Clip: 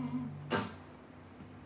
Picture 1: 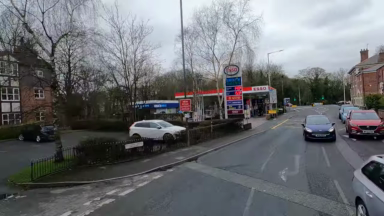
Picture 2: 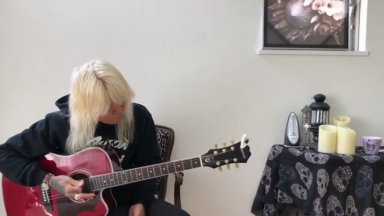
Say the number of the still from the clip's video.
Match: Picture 2